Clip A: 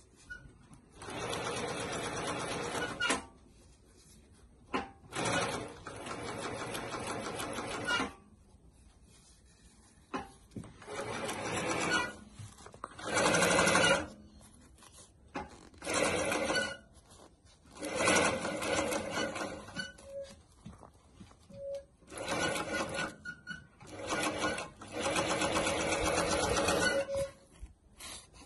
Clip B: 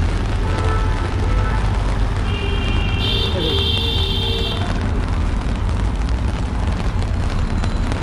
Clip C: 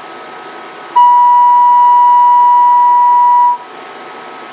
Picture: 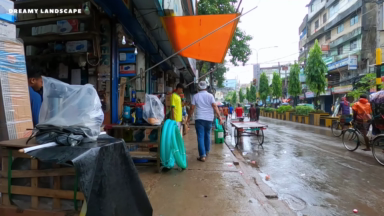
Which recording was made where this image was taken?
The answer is B